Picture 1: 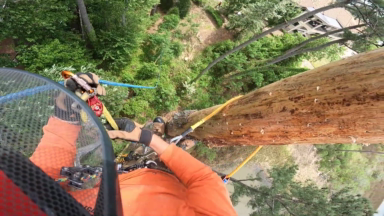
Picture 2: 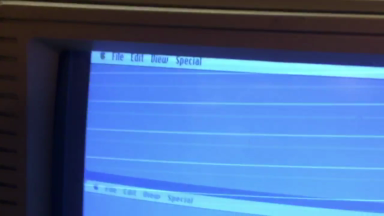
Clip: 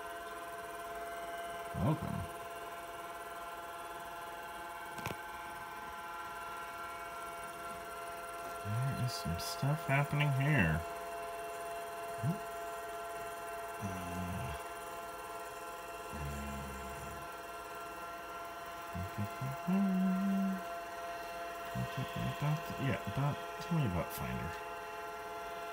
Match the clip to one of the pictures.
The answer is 2